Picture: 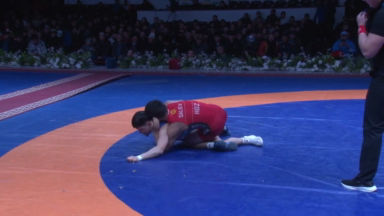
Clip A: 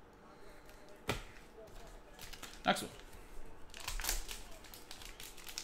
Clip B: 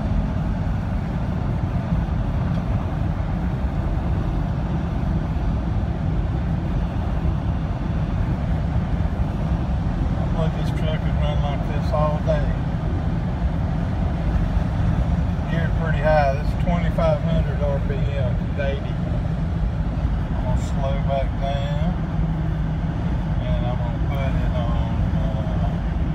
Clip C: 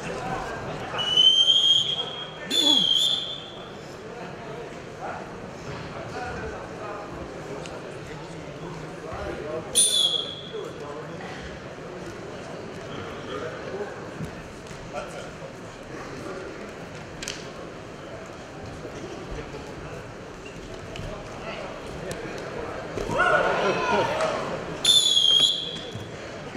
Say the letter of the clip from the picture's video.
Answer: C